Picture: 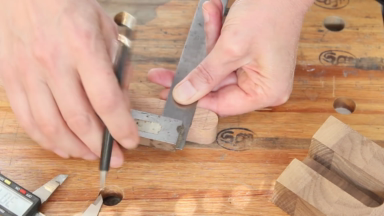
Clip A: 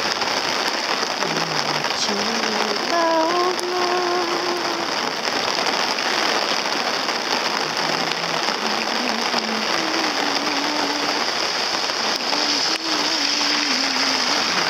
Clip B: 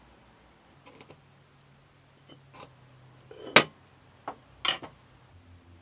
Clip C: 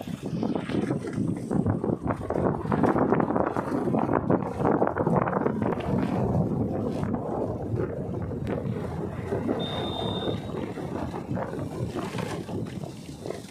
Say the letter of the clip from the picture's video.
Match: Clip B